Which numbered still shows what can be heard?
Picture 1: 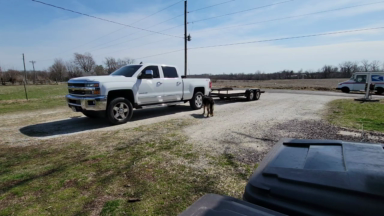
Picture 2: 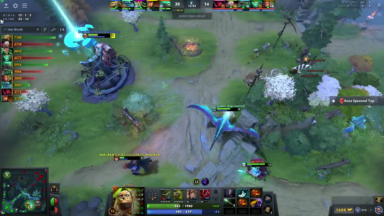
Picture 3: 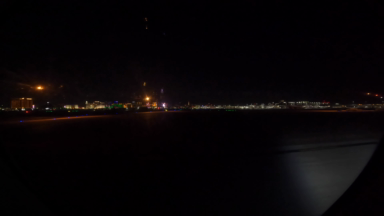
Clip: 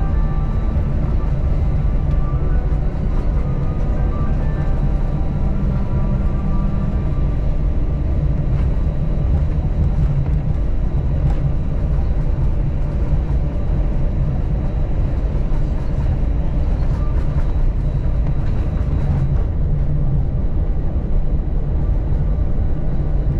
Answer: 3